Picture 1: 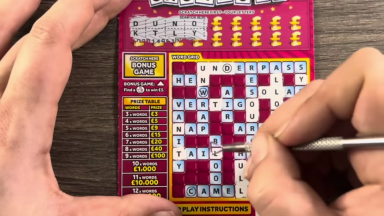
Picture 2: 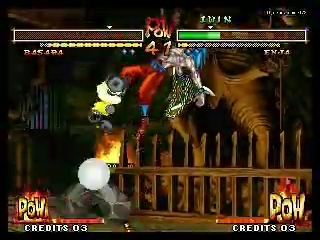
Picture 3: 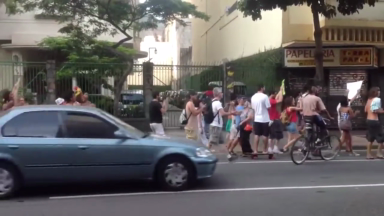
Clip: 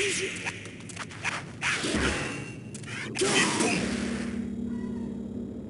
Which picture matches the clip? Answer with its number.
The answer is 2